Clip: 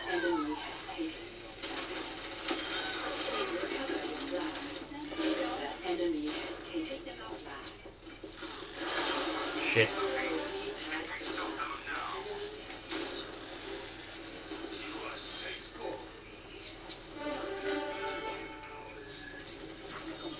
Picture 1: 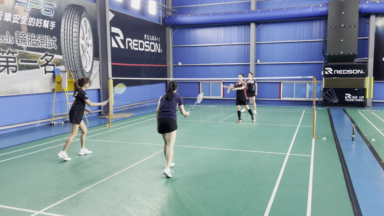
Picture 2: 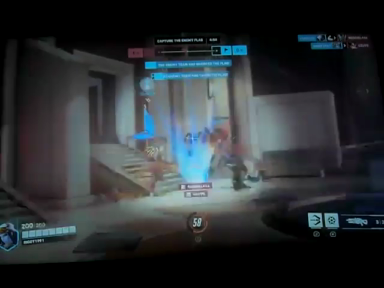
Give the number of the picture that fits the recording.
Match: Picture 2